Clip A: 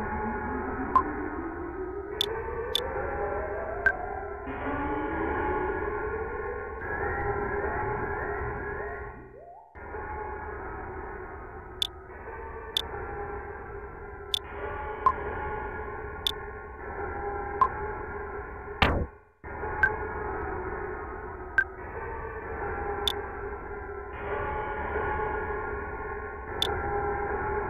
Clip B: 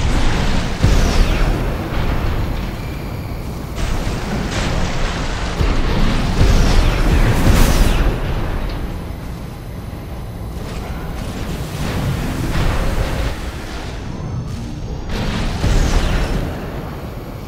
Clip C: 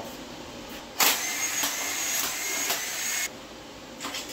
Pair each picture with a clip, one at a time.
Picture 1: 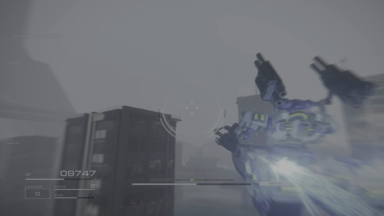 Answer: B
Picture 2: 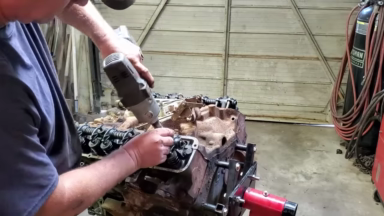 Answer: C